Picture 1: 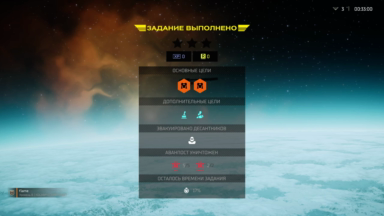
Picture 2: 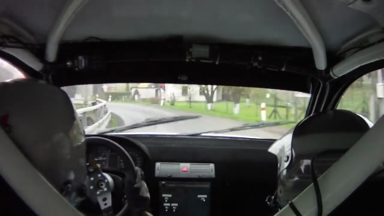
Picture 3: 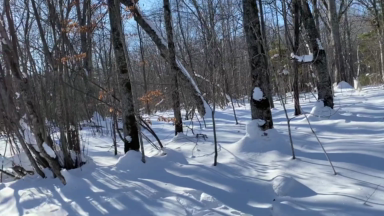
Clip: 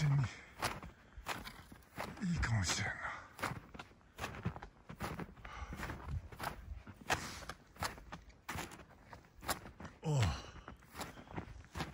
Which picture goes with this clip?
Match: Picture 3